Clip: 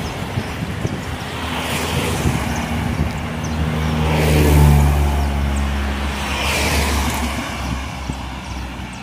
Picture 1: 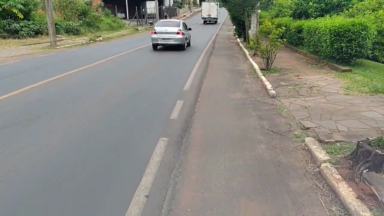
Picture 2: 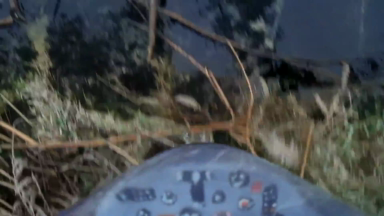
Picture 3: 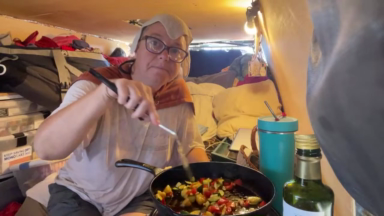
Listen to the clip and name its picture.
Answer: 1